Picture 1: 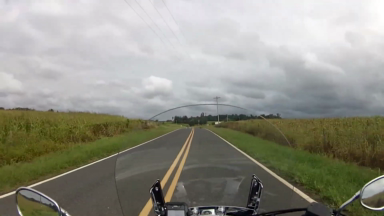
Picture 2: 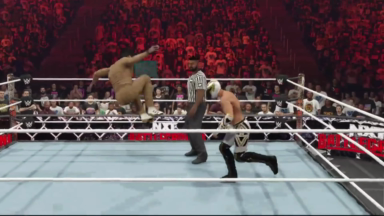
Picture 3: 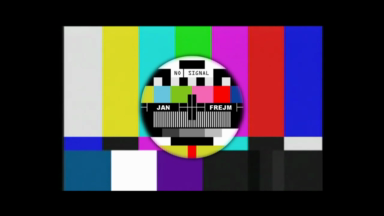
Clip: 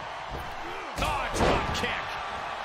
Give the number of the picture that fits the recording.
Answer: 2